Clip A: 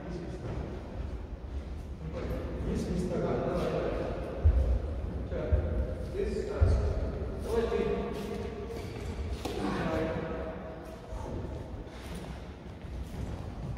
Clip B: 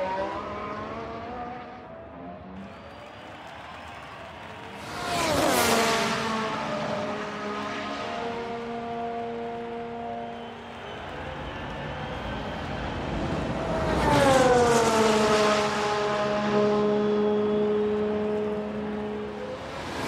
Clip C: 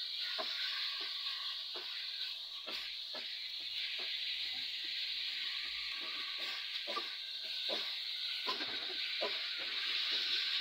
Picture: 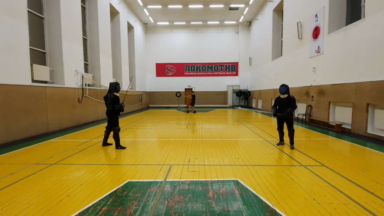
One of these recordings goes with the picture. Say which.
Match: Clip A